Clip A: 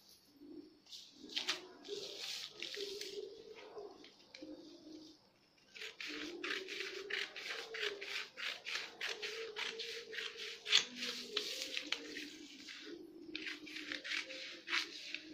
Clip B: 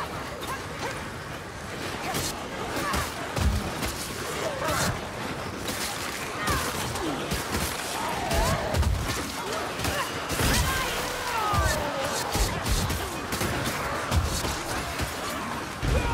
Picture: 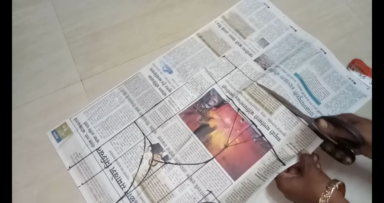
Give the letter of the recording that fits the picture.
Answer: A